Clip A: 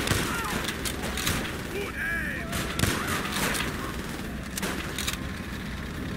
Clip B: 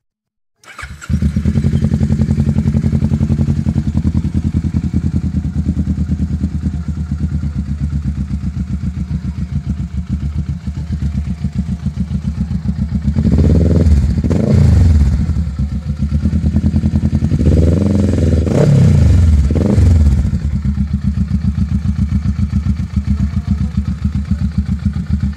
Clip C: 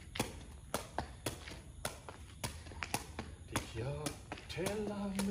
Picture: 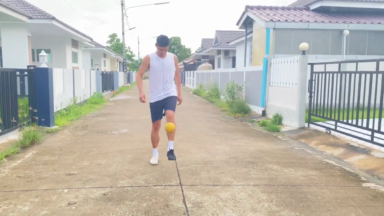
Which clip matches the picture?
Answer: C